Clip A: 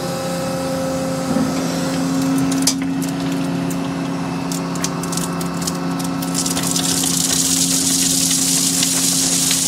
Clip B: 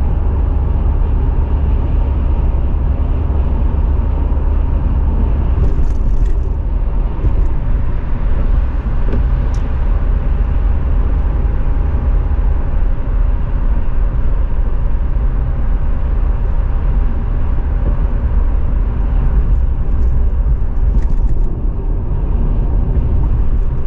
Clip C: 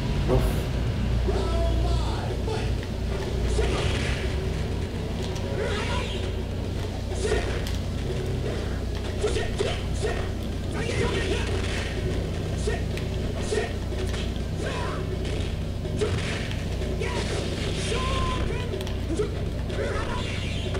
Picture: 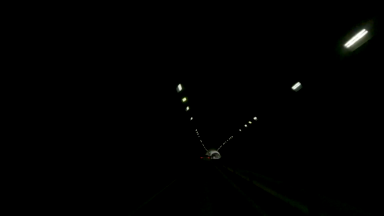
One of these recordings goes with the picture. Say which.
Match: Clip B